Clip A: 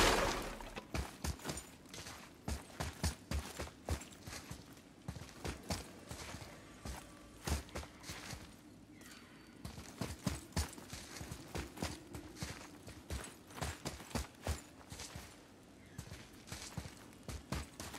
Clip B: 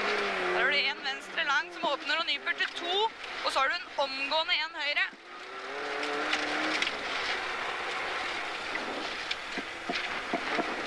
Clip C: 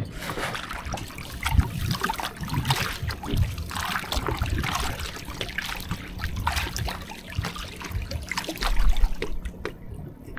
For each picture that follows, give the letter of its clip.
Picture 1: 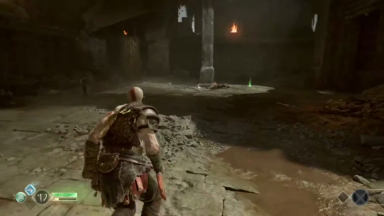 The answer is A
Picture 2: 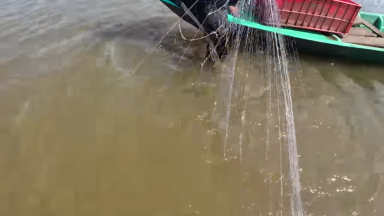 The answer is C